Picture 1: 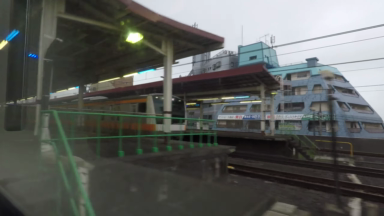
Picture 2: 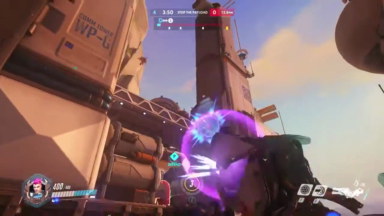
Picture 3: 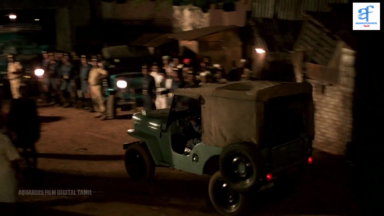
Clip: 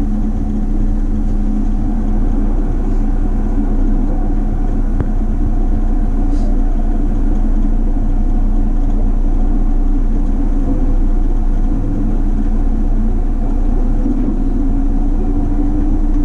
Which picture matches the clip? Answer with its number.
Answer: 1